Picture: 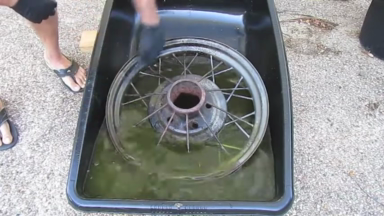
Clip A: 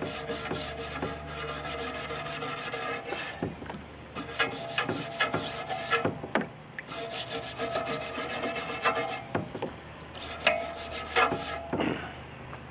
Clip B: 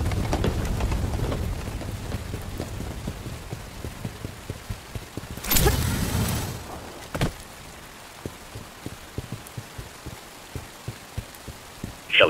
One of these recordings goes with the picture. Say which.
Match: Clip A